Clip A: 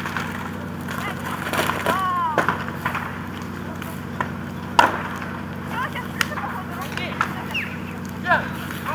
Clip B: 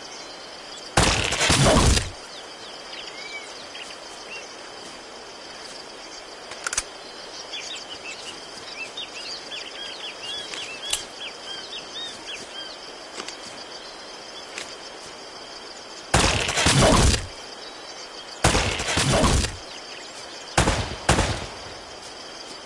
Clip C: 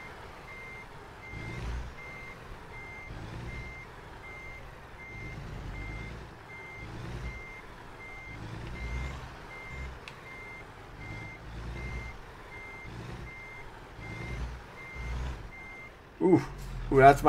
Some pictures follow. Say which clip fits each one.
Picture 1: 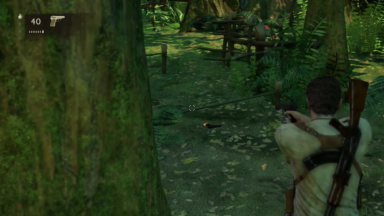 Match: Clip B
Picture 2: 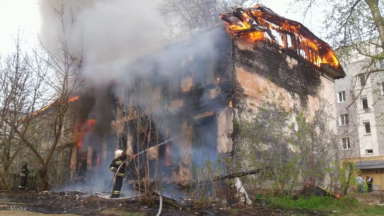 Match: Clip A